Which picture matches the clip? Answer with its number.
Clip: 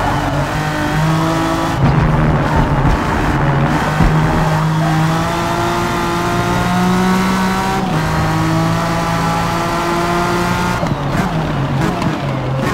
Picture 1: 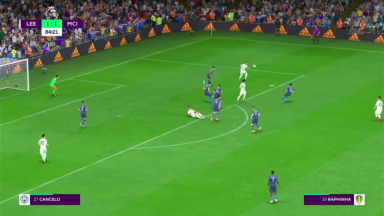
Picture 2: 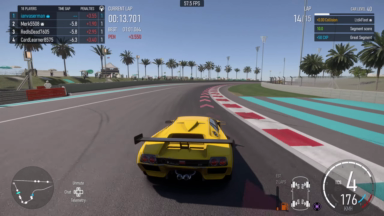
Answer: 2